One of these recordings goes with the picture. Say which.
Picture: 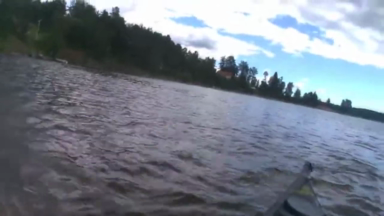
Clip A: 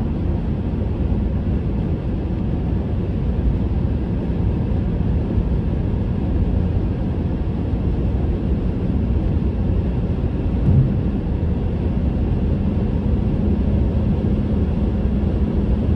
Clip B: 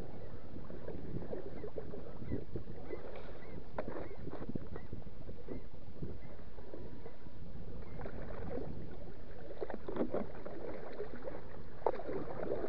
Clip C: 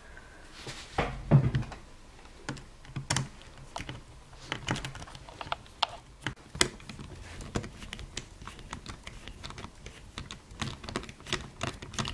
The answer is B